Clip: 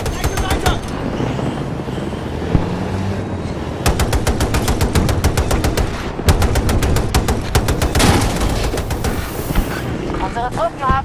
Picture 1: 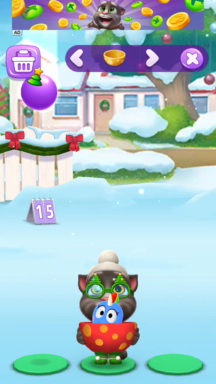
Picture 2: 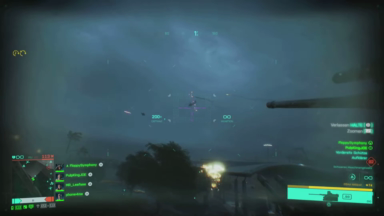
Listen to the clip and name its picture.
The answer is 2